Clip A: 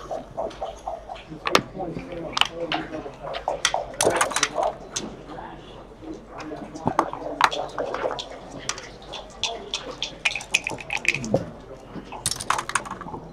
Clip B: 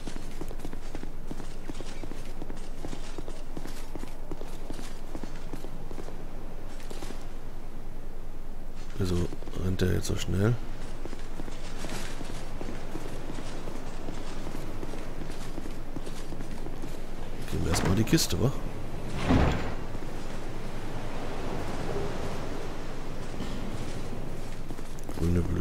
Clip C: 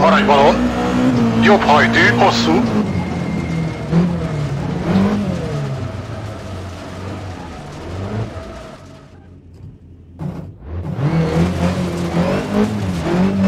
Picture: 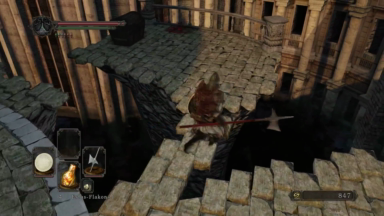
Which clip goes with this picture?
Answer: B